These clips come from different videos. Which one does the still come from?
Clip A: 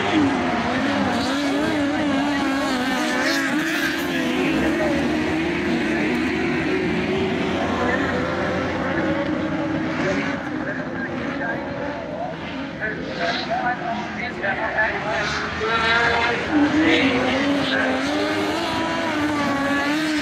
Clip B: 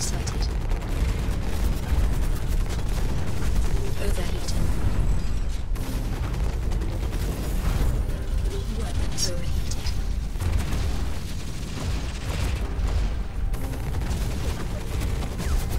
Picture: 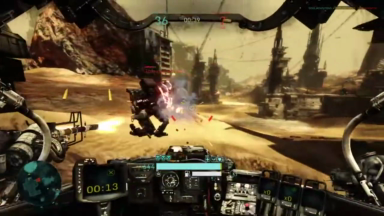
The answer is B